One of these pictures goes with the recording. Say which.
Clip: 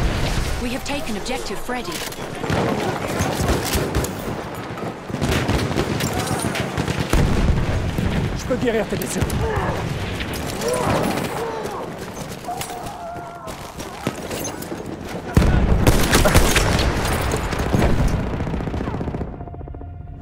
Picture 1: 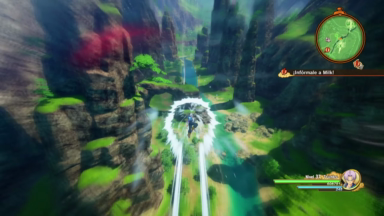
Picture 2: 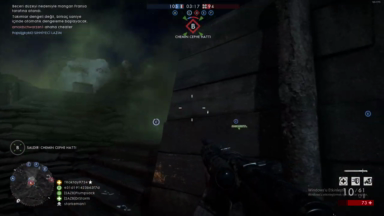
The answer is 2